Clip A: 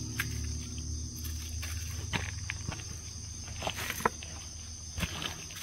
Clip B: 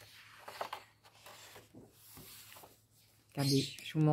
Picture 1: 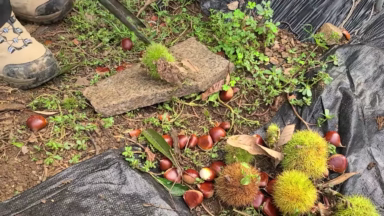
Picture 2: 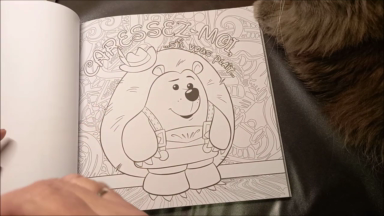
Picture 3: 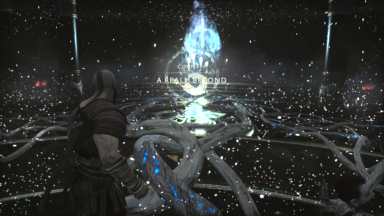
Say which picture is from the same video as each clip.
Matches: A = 1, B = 2